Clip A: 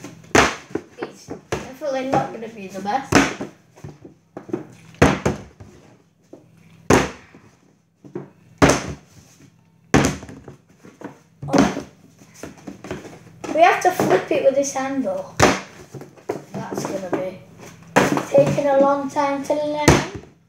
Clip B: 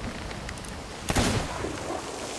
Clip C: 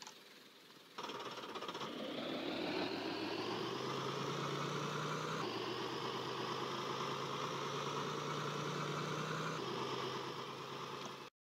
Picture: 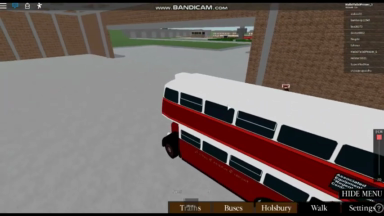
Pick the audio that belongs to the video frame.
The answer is C